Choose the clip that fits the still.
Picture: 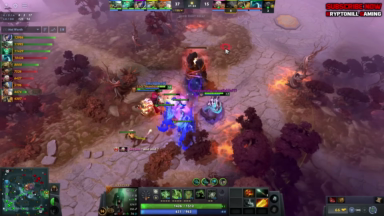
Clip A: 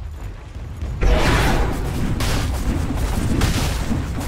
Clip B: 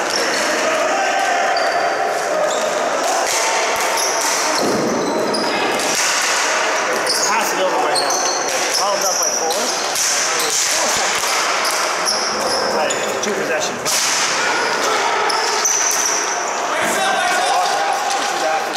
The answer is A